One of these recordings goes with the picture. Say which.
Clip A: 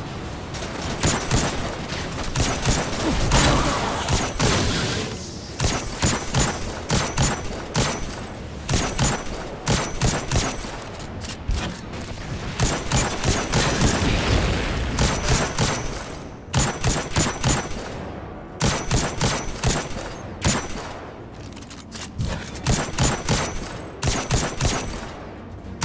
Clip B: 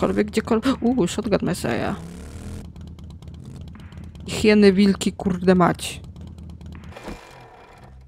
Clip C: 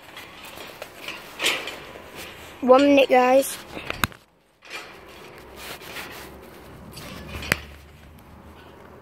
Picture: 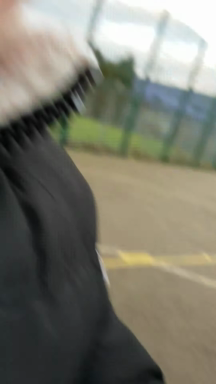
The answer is C